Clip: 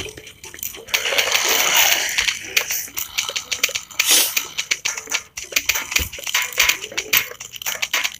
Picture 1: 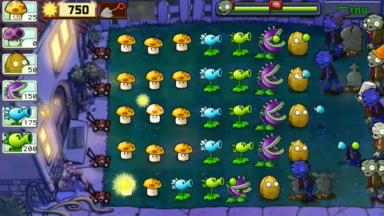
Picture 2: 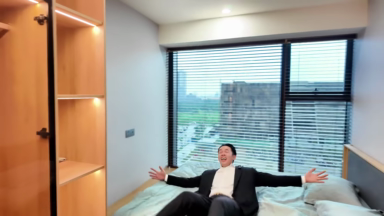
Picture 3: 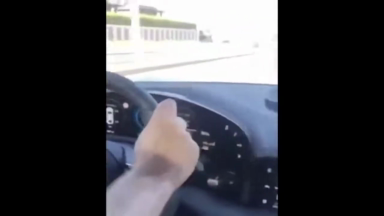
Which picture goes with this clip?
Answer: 1